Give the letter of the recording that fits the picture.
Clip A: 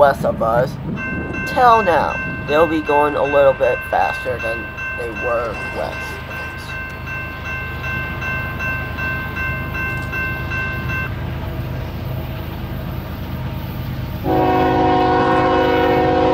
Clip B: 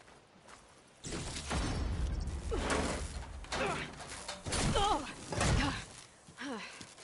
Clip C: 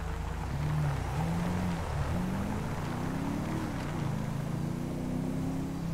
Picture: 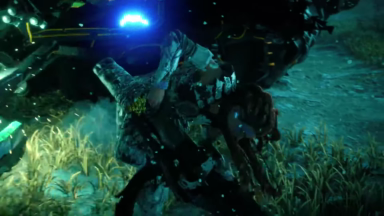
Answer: B